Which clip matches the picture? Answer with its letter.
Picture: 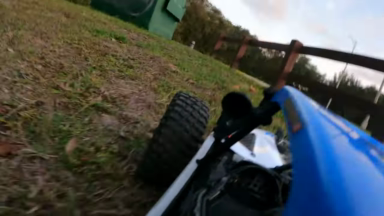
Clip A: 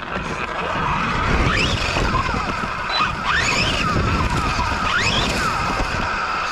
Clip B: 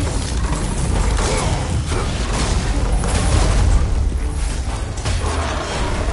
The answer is A